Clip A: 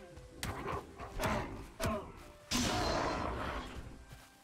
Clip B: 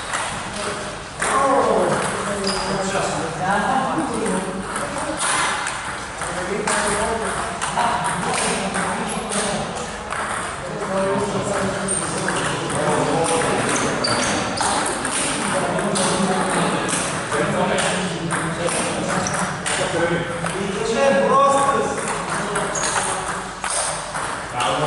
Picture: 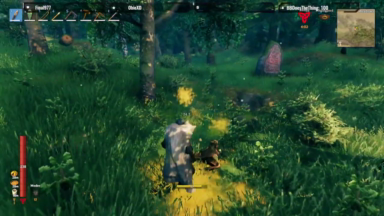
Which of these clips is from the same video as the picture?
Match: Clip A